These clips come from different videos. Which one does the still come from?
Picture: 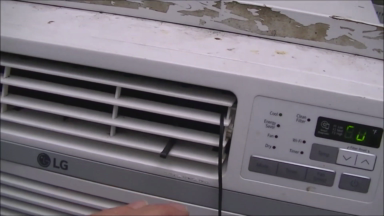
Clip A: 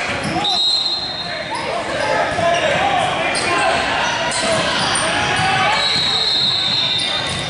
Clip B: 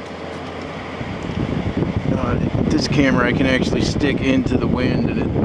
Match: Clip B